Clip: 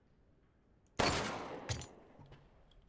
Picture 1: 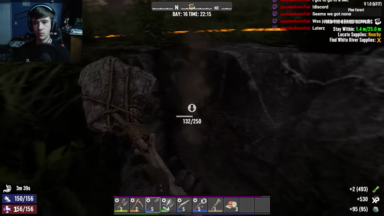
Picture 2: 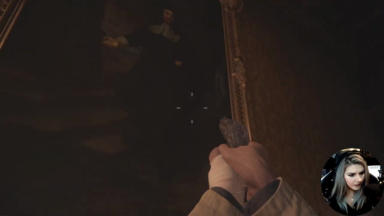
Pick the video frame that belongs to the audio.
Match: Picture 2